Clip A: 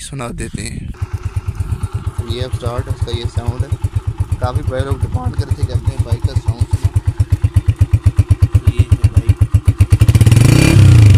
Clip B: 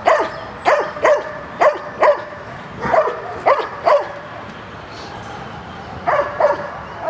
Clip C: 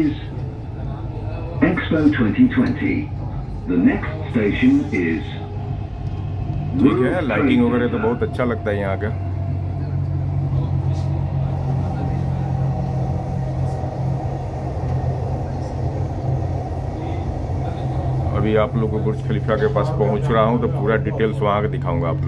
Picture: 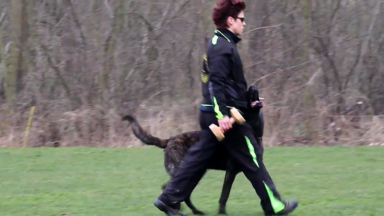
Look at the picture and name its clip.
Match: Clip B